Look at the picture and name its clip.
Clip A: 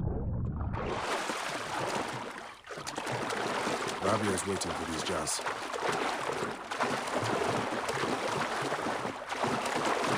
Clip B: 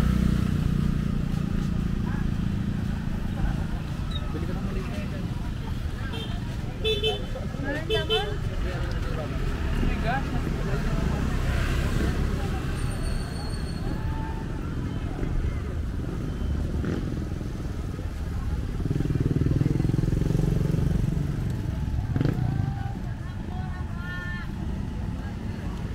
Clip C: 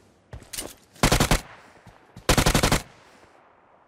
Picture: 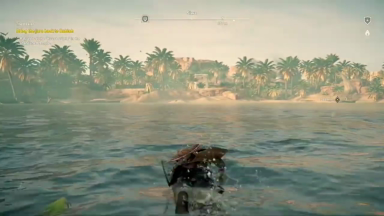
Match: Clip A